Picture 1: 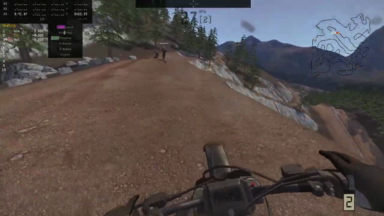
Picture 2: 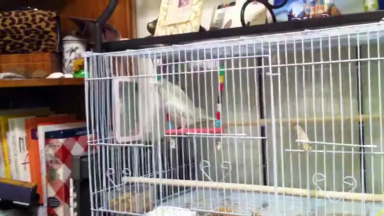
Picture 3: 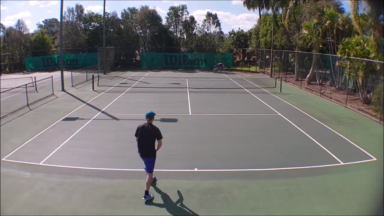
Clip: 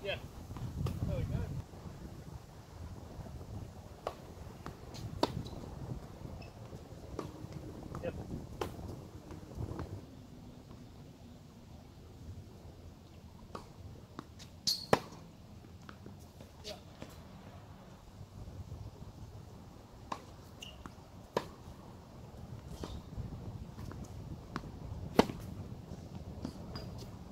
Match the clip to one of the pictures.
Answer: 3